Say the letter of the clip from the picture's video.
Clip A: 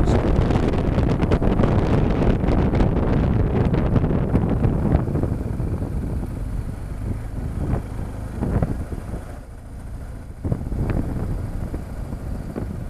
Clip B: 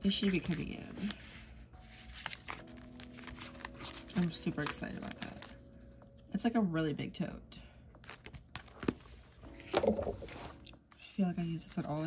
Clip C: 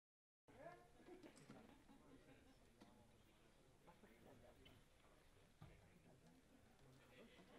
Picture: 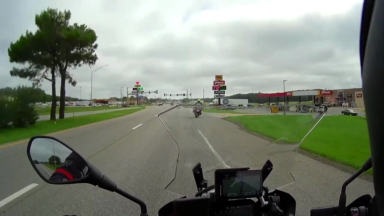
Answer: A